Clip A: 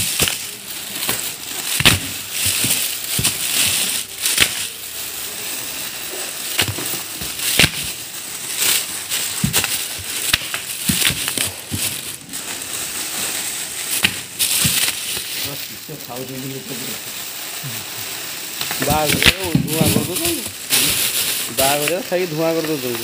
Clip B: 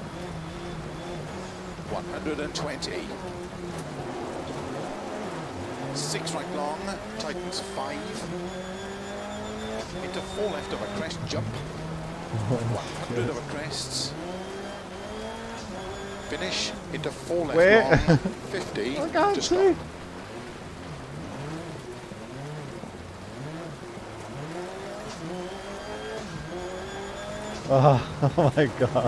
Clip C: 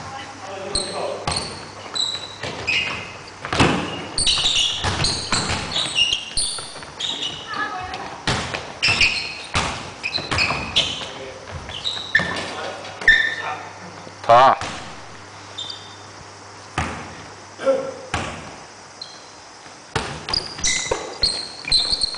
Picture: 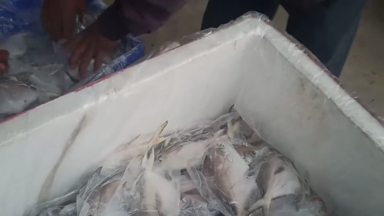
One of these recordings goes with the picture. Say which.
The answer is A